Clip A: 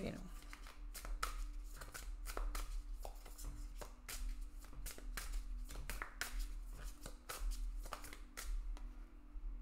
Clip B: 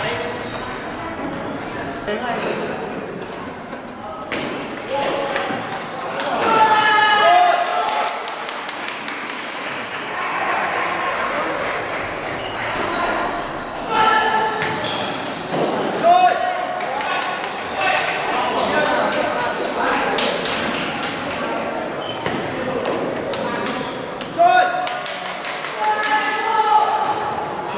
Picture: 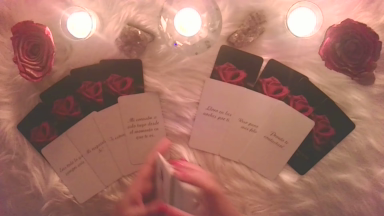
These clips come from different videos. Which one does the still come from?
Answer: A